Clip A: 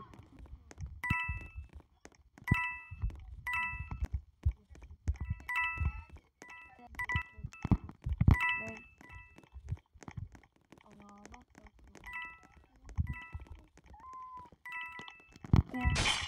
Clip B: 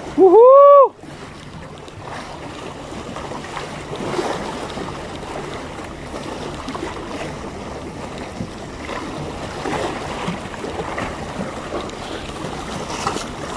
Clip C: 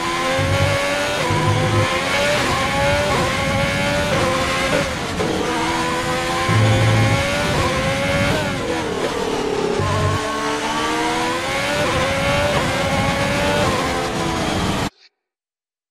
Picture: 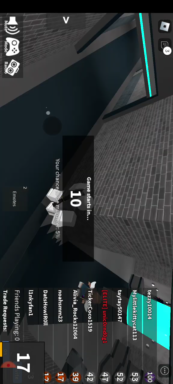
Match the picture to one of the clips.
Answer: A